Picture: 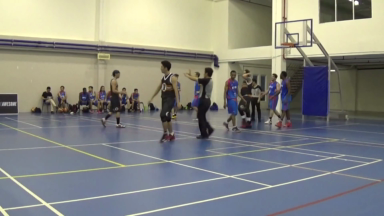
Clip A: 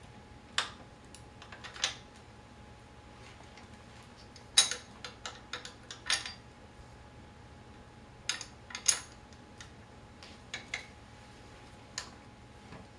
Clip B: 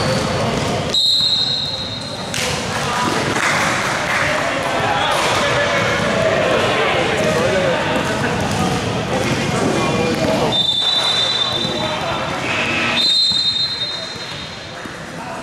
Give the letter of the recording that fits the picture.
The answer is B